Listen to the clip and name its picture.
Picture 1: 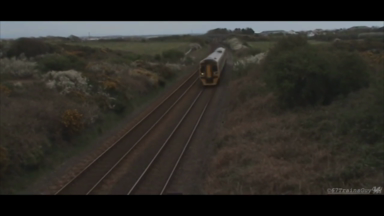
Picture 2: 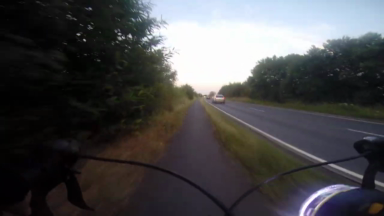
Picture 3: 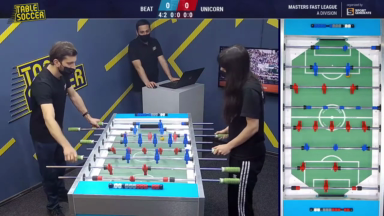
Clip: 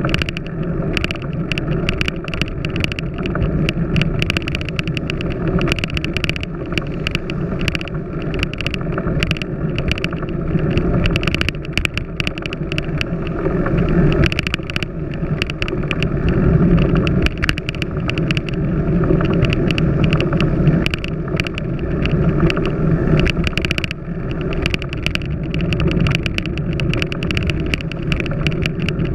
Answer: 2